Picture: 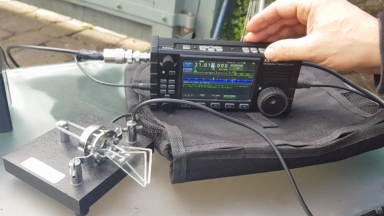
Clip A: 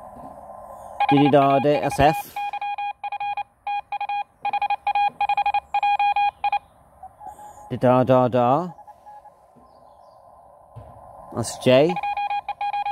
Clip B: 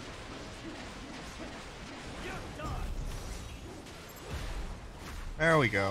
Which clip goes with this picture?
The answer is A